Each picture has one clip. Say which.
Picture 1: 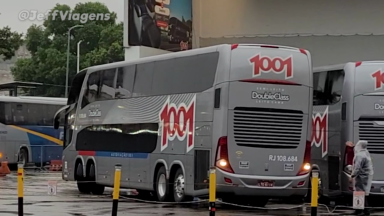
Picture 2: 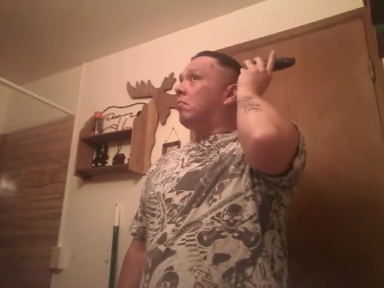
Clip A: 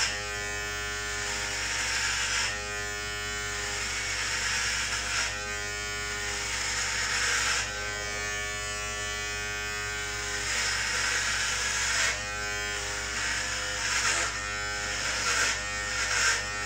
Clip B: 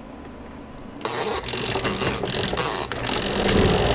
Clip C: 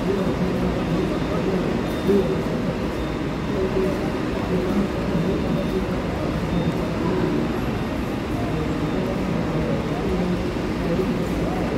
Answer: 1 C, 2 A